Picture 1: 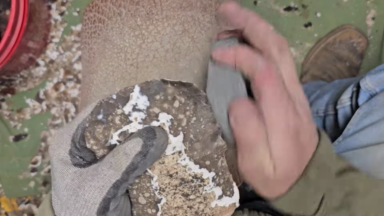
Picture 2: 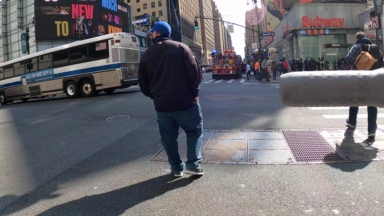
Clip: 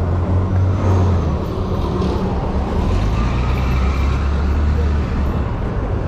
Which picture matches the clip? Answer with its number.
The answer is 2